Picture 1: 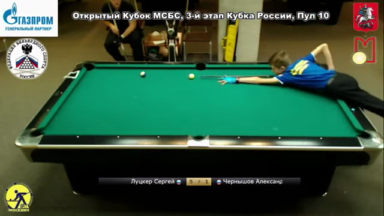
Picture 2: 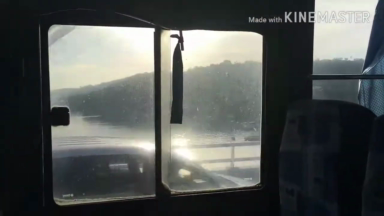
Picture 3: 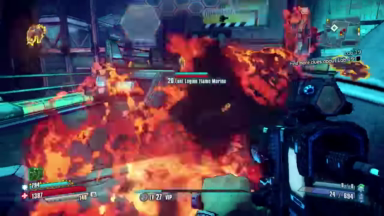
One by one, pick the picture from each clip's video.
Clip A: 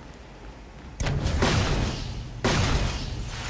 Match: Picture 3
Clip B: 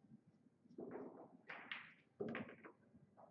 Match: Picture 1